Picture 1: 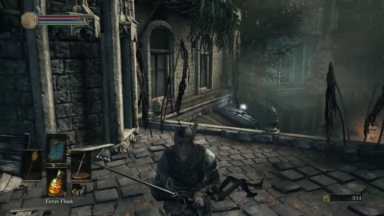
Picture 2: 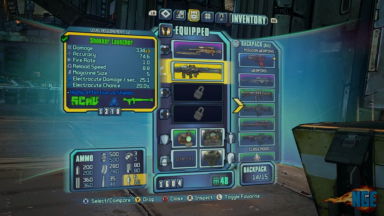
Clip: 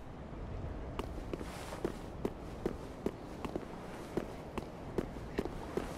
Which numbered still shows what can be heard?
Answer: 1